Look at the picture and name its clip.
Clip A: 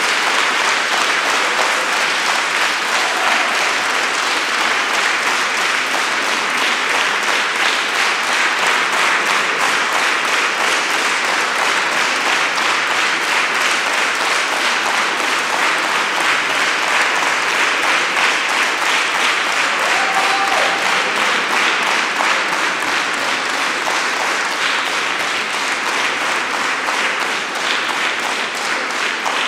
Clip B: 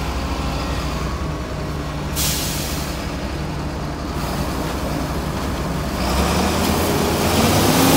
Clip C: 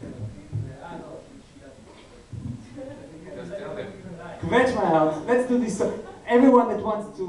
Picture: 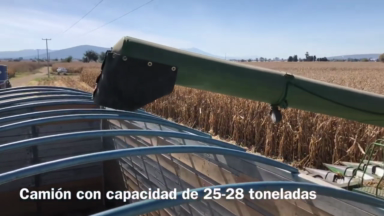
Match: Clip B